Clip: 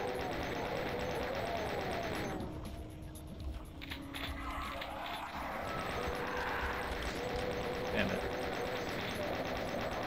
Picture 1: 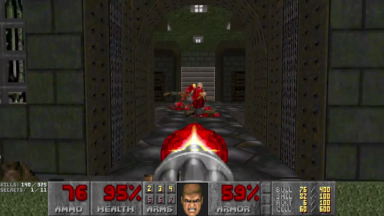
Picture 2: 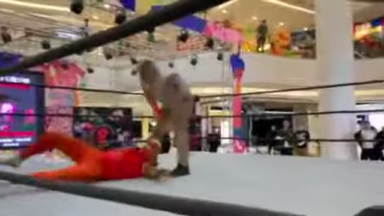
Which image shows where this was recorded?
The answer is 1